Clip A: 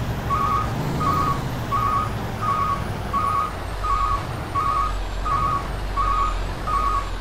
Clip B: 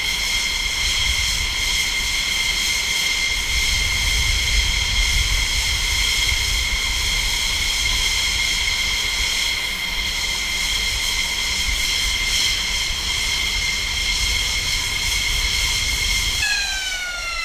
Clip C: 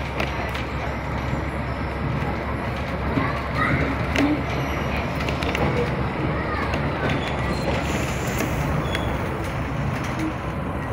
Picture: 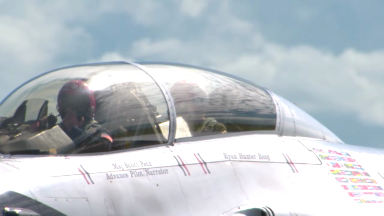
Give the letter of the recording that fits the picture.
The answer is B